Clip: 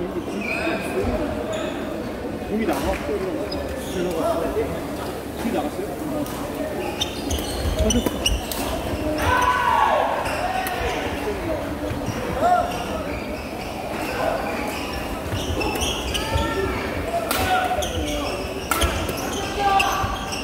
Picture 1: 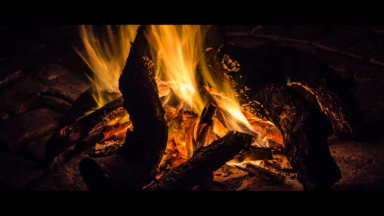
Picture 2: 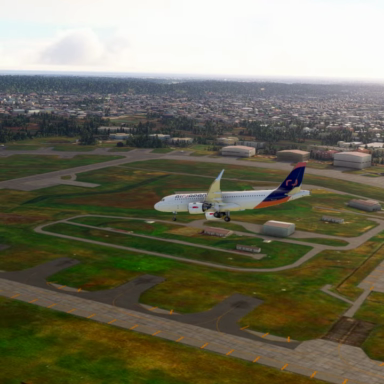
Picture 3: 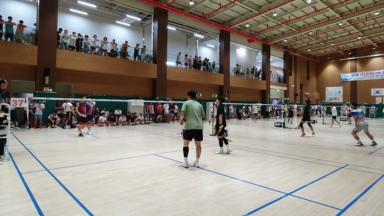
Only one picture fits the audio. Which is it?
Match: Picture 3